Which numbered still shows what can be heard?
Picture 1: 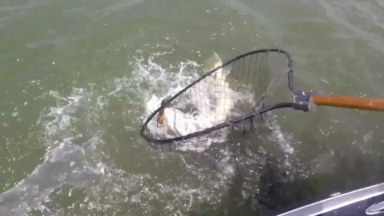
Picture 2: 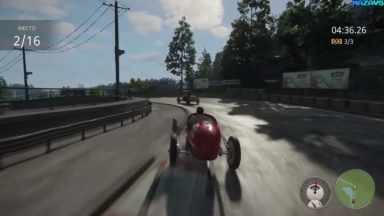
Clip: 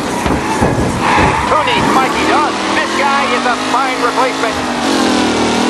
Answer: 2